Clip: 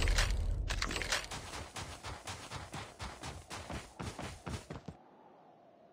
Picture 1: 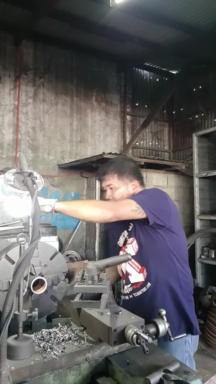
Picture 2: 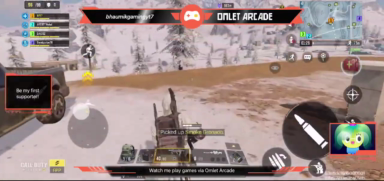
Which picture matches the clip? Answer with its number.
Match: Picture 2